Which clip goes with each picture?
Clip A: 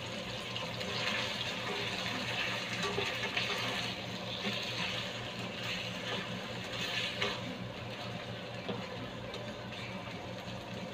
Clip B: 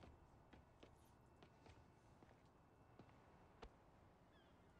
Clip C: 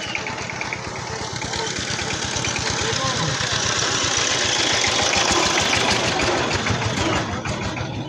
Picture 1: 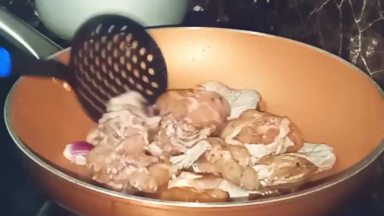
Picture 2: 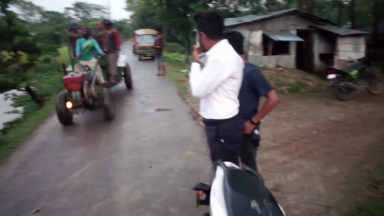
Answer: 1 A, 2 C